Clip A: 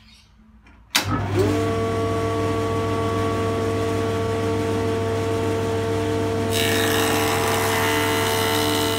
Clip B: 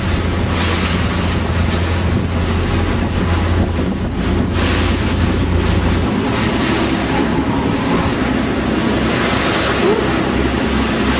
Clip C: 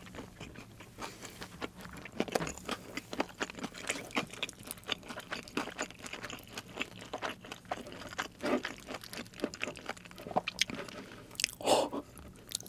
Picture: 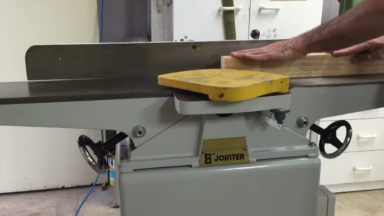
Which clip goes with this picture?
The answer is A